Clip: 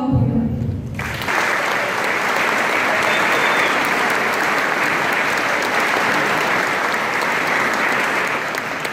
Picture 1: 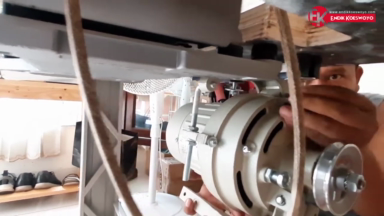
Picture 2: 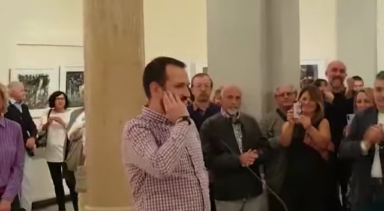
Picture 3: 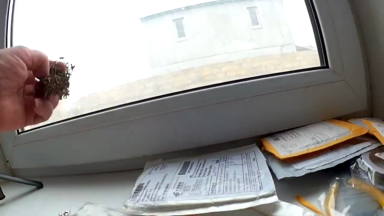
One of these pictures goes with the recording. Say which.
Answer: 2